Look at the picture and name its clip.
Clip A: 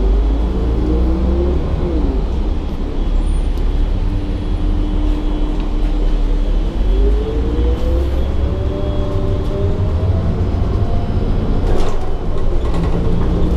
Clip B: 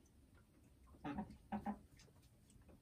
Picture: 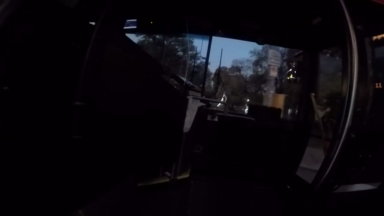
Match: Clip A